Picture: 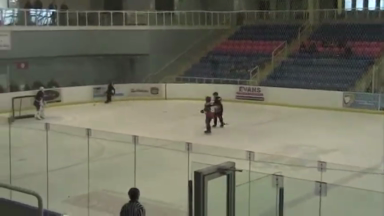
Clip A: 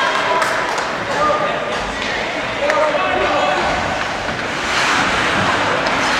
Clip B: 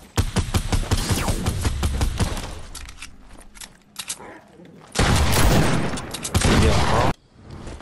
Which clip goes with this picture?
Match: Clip A